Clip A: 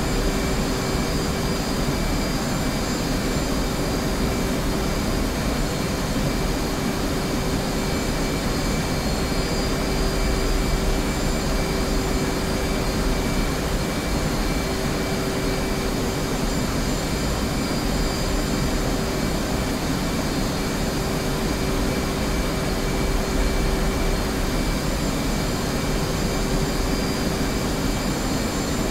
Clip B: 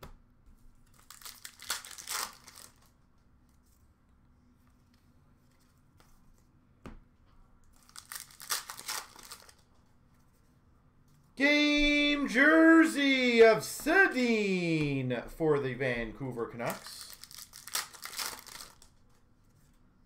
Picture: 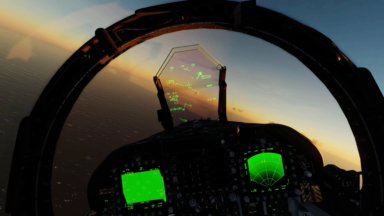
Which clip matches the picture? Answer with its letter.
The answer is A